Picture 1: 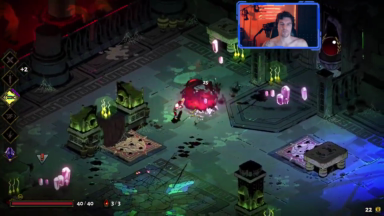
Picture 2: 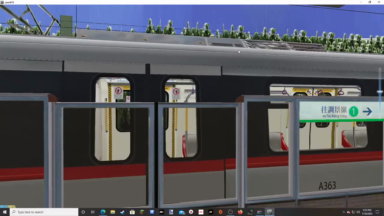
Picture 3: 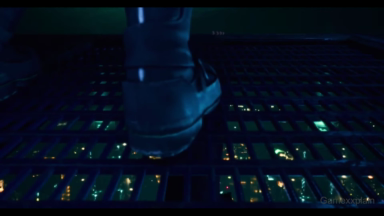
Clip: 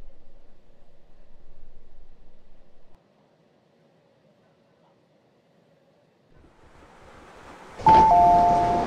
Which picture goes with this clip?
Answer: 2